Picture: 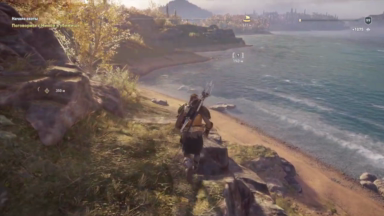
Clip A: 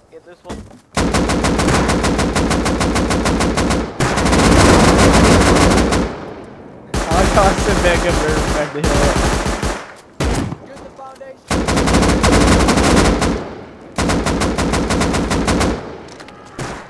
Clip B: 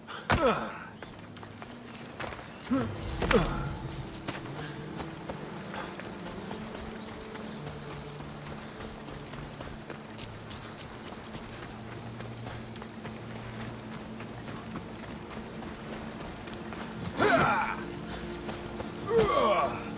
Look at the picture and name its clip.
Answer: B